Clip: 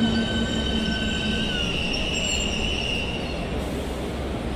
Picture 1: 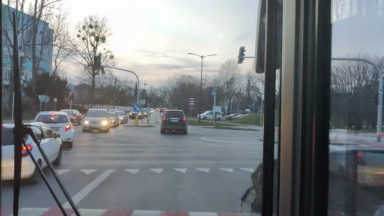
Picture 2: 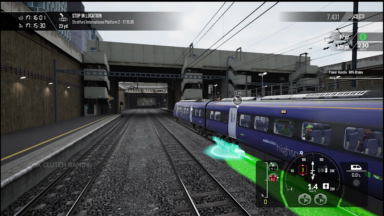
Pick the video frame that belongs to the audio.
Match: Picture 2